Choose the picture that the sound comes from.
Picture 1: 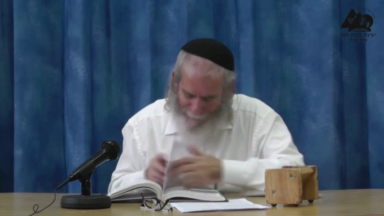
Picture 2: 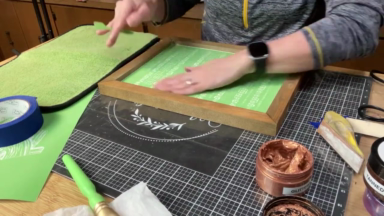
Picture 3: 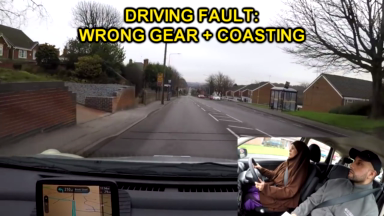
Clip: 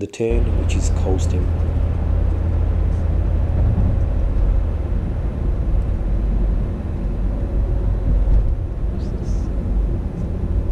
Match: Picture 3